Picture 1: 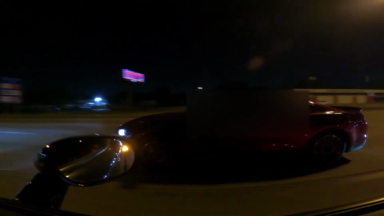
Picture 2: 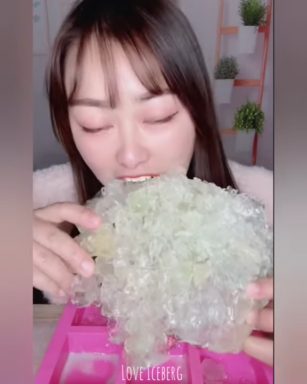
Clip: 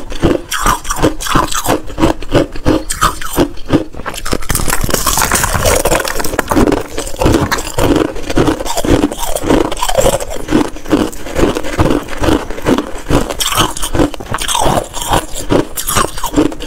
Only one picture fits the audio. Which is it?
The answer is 2